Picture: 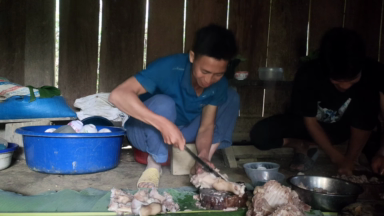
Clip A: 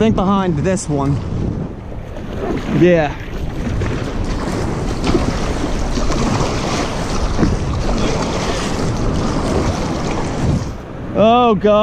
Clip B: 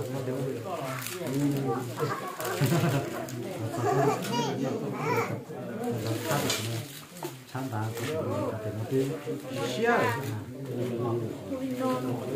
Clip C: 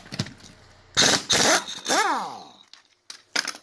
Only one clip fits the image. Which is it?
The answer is B